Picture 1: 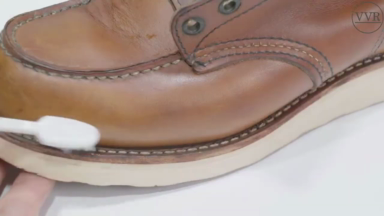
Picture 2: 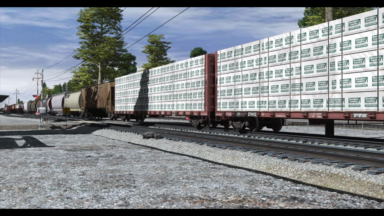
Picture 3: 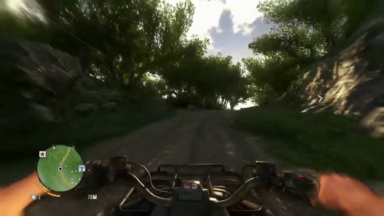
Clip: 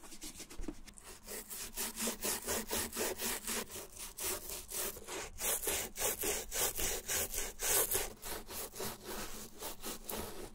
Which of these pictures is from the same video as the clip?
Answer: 1